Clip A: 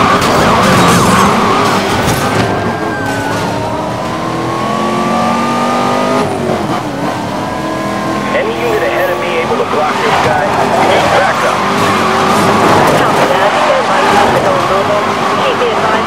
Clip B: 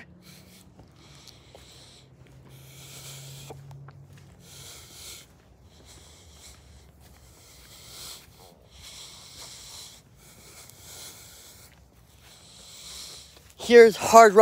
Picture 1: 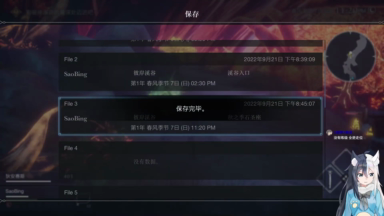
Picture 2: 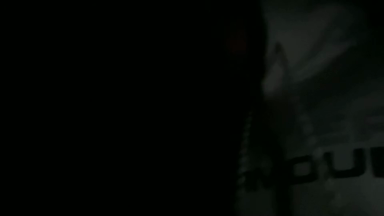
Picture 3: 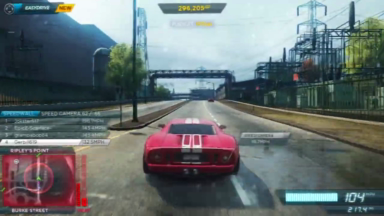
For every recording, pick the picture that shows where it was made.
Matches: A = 3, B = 2